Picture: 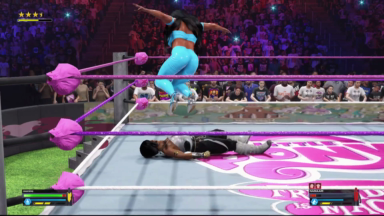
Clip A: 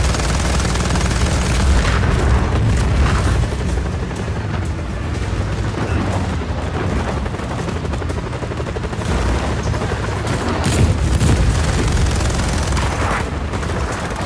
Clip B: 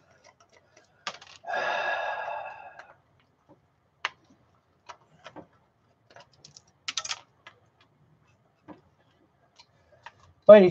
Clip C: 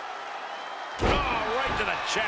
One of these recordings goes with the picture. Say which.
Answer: C